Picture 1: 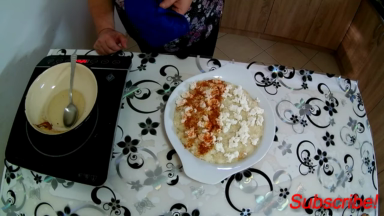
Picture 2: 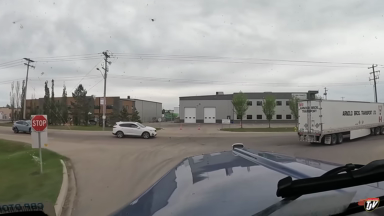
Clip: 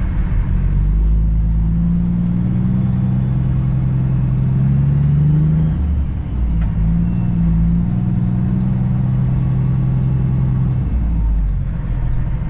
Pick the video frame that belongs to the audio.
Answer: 2